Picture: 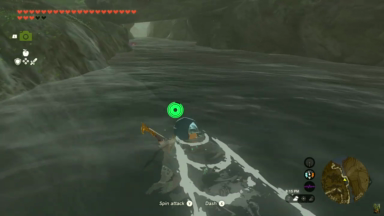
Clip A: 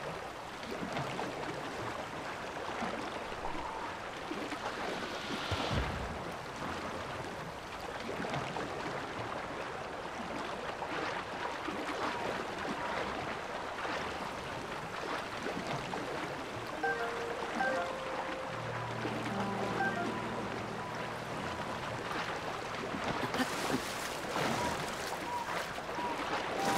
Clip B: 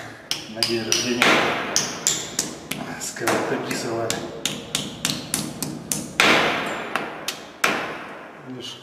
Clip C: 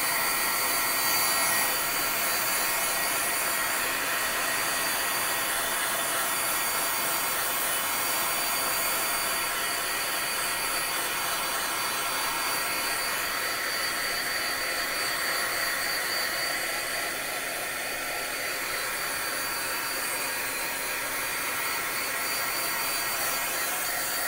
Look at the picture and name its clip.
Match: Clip A